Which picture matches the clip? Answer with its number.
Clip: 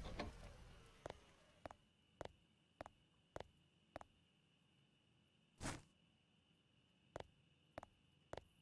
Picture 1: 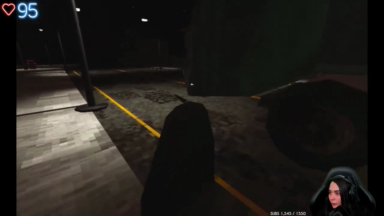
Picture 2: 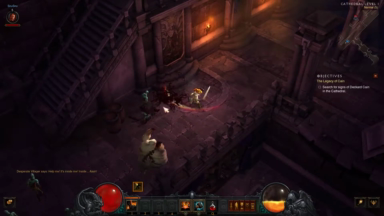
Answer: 1